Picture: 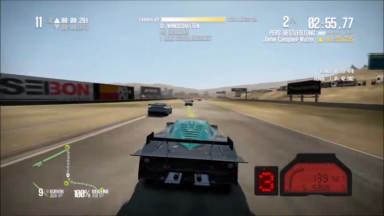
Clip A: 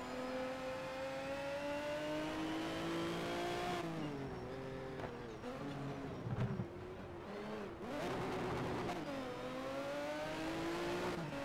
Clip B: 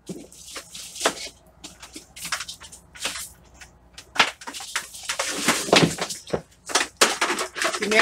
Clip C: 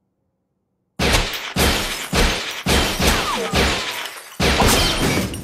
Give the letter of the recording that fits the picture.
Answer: A